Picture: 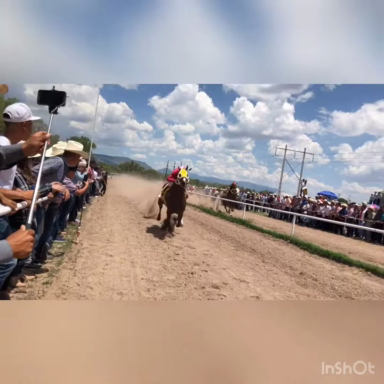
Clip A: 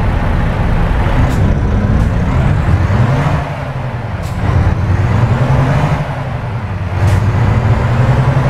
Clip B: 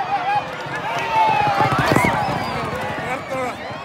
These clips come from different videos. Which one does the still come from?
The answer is B